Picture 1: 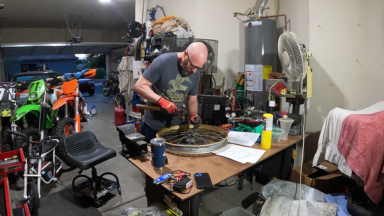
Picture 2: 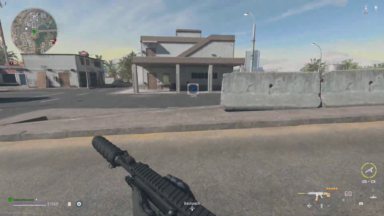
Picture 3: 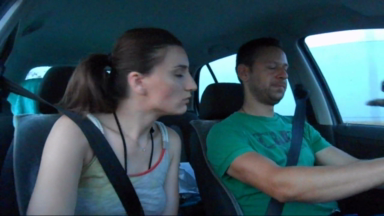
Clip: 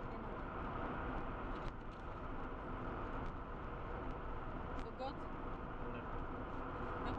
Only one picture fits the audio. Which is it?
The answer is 3